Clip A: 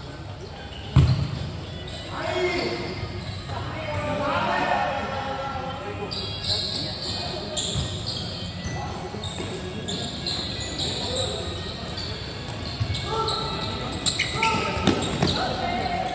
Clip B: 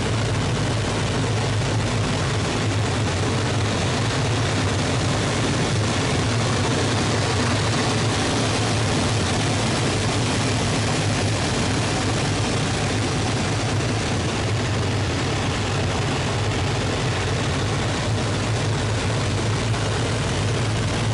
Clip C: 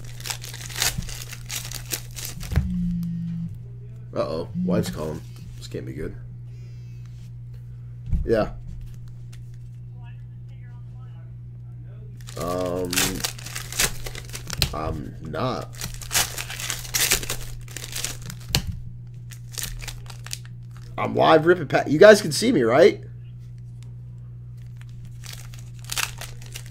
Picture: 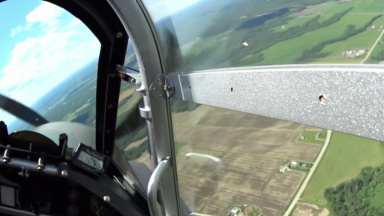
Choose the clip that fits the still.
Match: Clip B